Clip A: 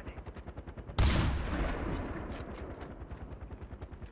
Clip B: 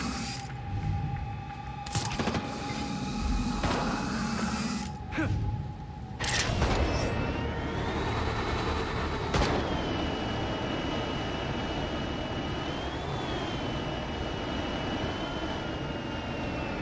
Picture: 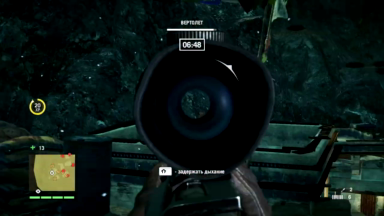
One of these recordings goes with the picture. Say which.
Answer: A